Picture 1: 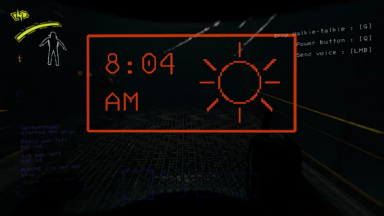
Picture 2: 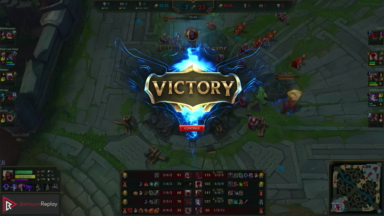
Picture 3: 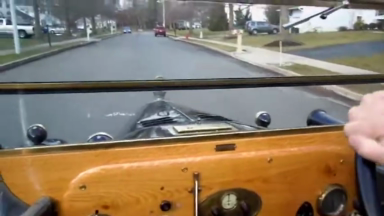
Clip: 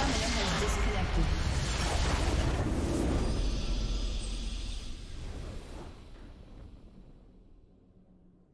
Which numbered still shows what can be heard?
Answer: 2